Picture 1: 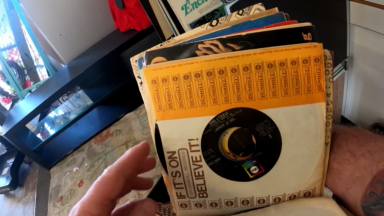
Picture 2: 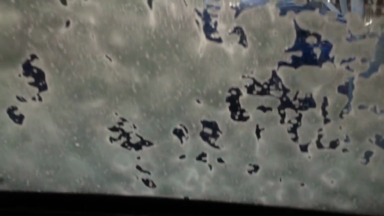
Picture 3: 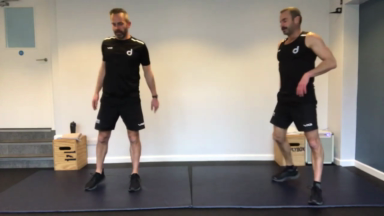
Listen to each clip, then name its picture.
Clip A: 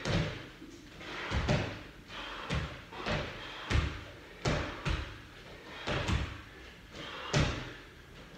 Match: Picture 3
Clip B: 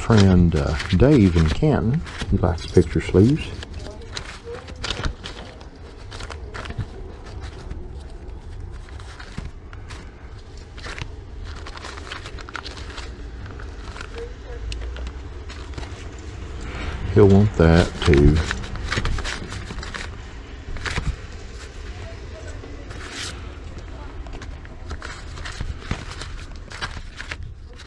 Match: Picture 1